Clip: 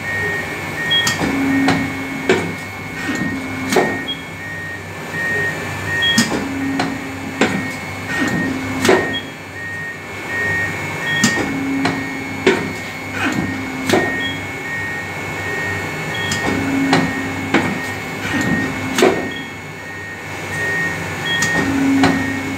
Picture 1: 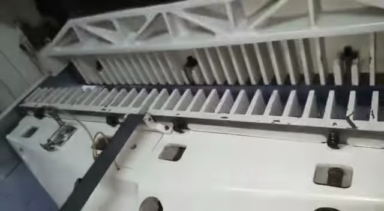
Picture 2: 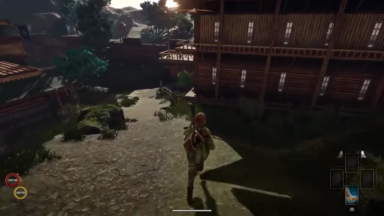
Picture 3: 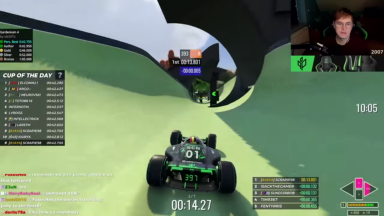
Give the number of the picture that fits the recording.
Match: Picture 1